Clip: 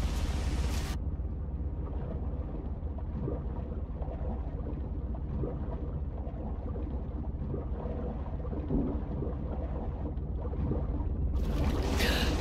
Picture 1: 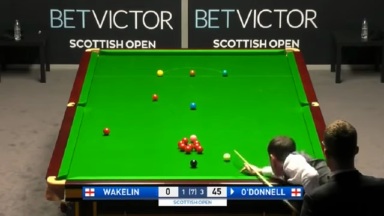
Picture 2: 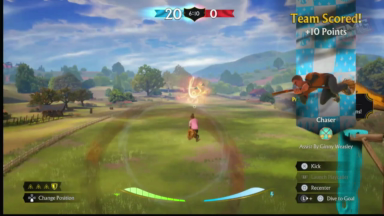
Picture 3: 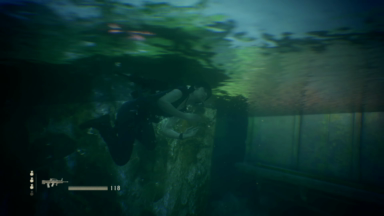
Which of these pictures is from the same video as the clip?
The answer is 3